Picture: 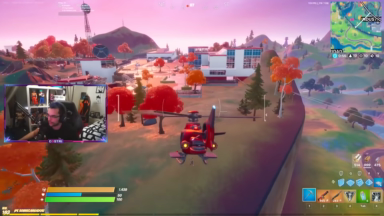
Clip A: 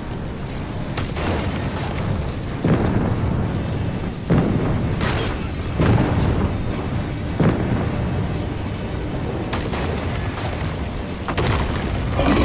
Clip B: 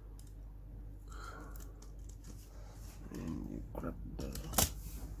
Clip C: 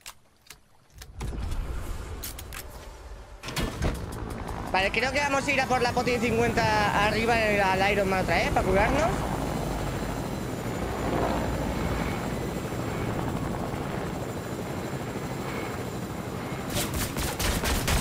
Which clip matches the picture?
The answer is C